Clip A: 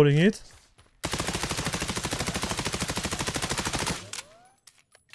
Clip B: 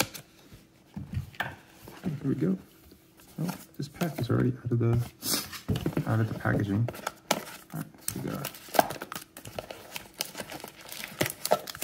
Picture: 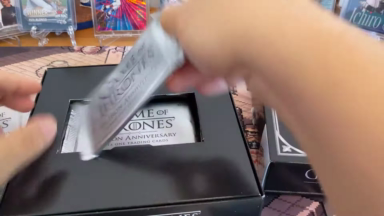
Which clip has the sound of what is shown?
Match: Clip B